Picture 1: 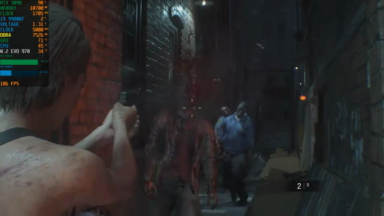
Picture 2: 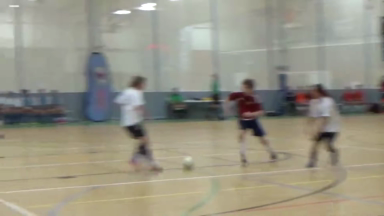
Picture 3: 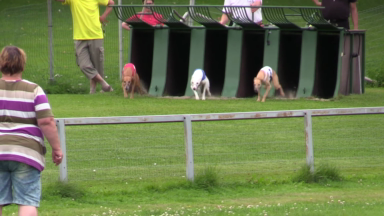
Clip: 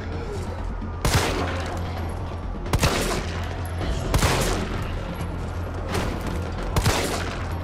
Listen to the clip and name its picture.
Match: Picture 1